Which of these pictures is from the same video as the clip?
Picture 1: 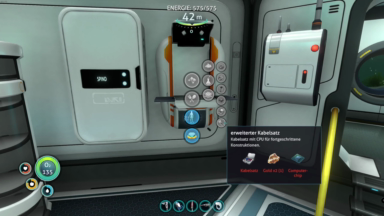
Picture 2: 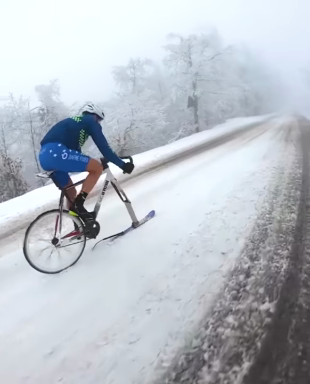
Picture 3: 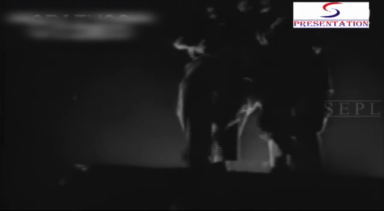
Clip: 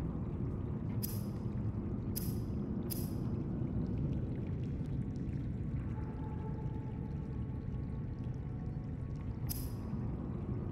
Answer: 1